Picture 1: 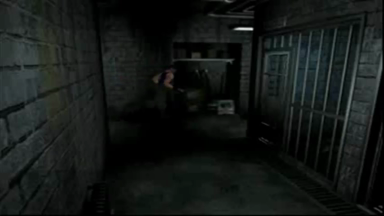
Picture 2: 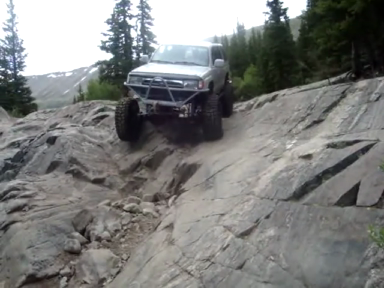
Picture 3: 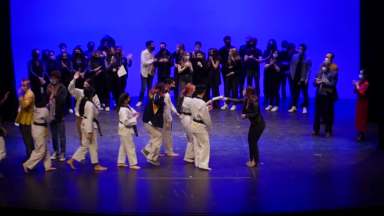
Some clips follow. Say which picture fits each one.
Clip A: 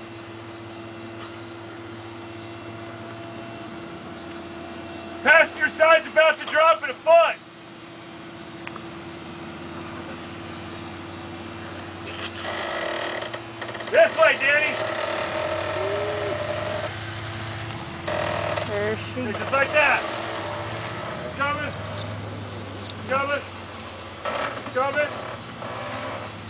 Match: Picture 2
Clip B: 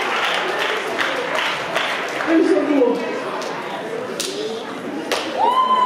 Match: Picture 3